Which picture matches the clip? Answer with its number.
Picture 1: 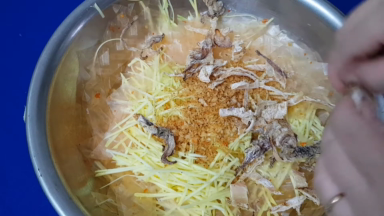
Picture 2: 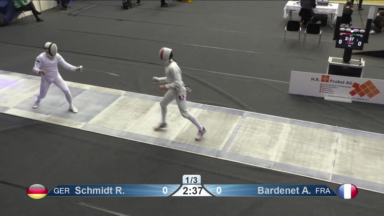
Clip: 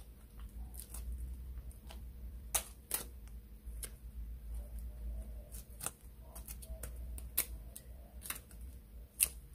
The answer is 1